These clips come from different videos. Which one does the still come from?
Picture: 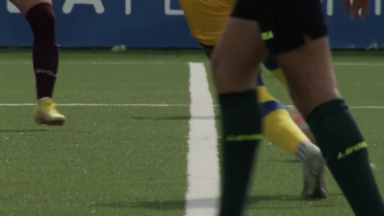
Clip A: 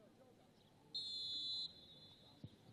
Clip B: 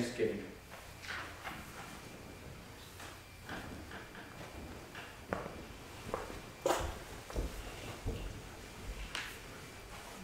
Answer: A